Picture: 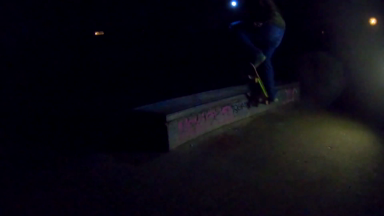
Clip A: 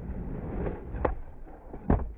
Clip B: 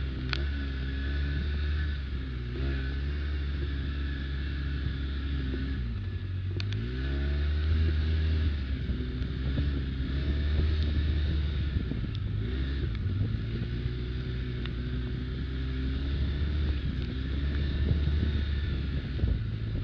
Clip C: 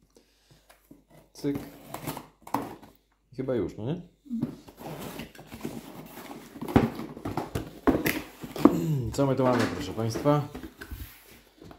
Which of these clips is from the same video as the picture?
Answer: A